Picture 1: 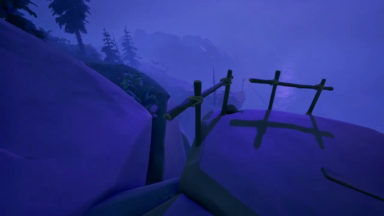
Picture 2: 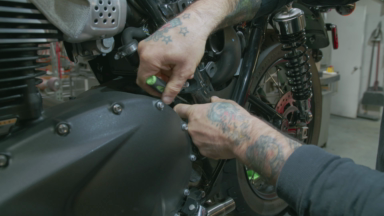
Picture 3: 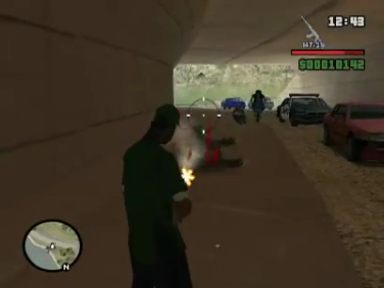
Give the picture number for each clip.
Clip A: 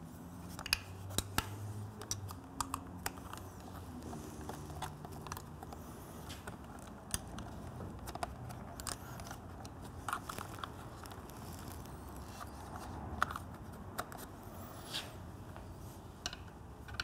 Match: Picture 2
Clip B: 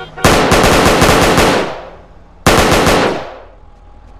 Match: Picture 3